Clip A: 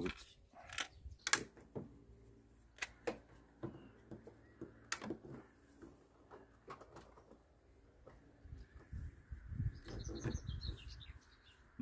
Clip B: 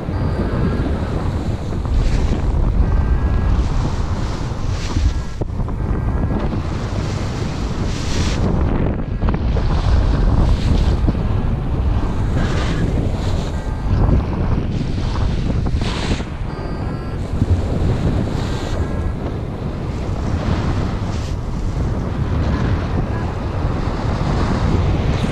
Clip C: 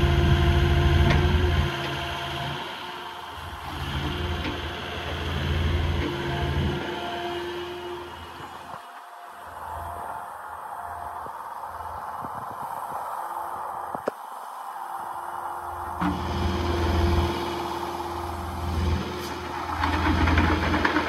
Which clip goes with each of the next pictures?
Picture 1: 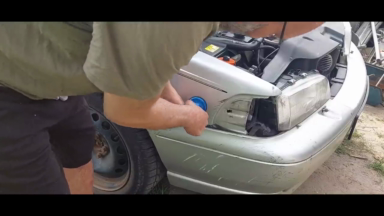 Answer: A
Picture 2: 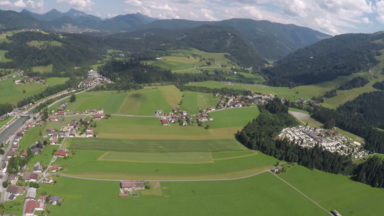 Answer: B